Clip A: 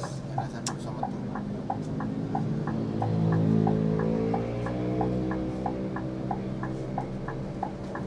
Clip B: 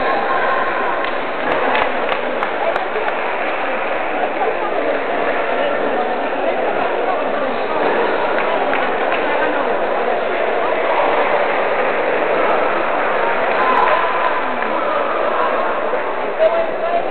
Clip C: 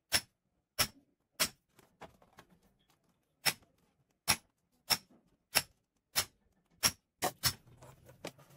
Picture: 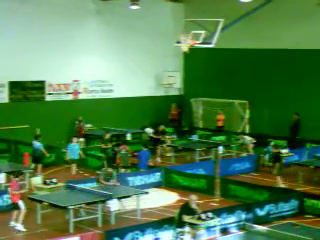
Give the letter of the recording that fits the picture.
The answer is B